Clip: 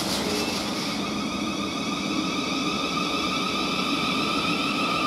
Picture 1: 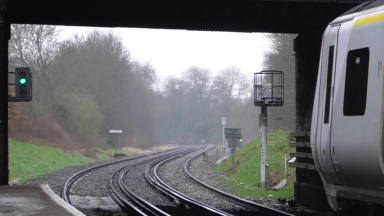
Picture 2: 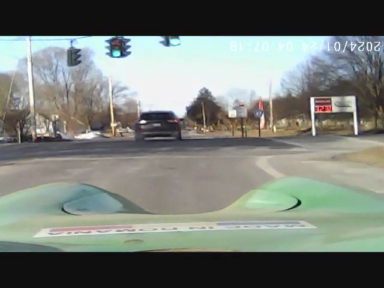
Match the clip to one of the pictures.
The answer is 1